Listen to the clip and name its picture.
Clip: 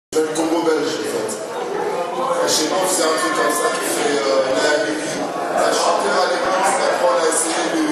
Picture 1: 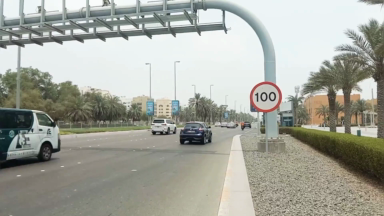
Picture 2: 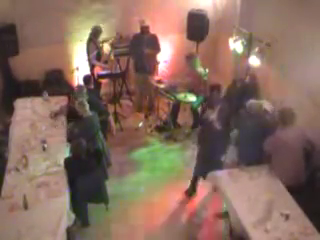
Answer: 2